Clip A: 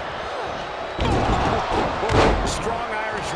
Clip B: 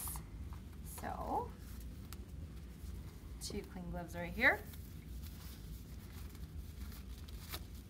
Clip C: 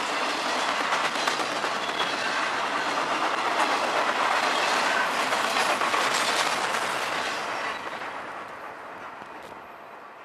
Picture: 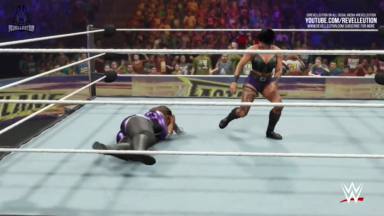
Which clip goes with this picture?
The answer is A